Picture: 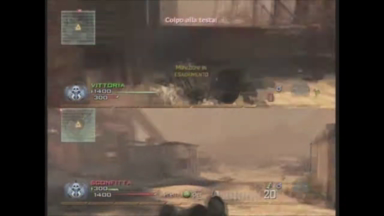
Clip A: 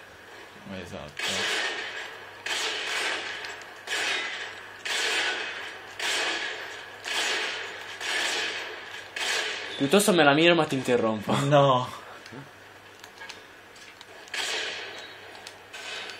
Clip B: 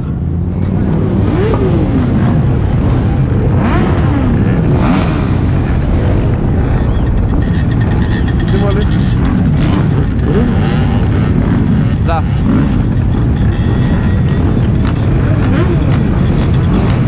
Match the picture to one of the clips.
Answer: A